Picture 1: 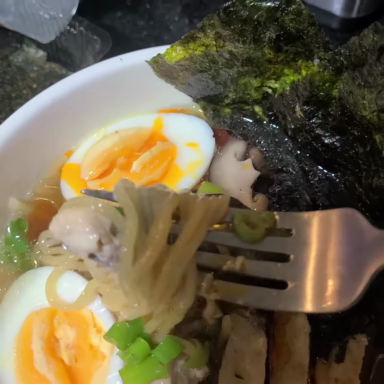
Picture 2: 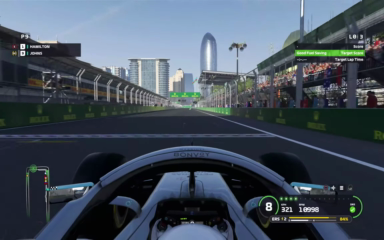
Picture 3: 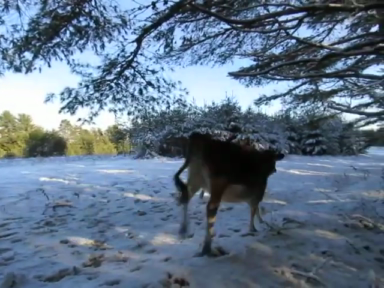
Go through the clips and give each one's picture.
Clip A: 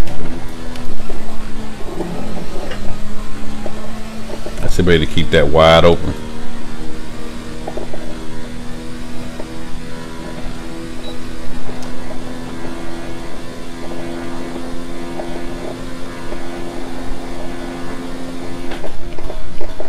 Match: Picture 2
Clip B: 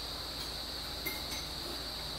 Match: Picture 1